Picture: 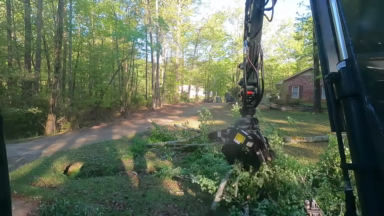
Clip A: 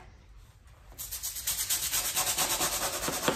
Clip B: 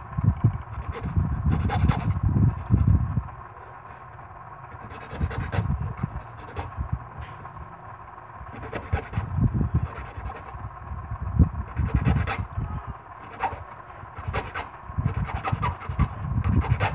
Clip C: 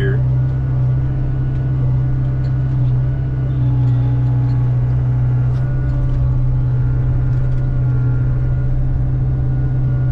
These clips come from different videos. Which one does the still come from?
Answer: C